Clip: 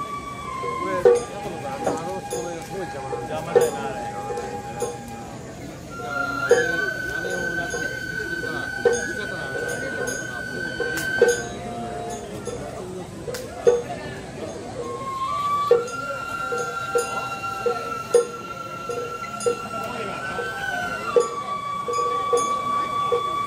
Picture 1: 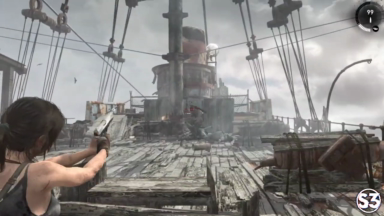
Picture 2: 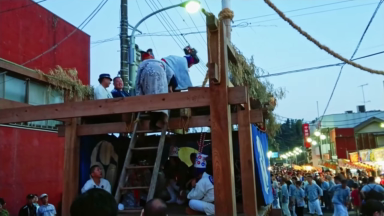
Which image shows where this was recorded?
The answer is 2